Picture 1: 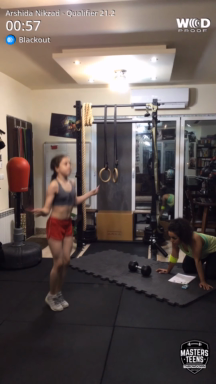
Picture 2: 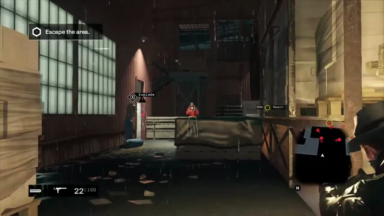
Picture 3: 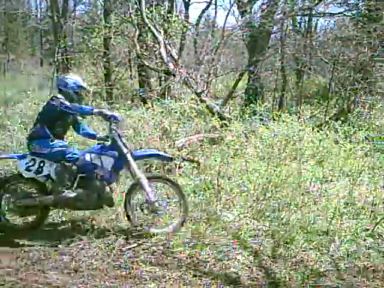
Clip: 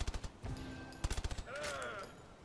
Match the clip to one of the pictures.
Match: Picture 2